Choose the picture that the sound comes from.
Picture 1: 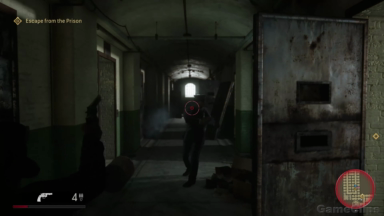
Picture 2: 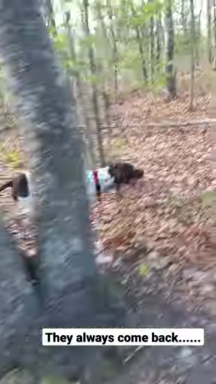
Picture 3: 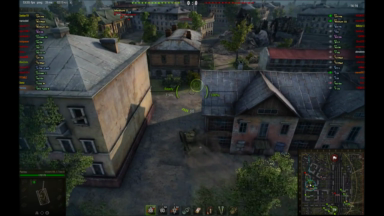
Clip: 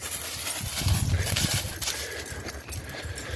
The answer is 2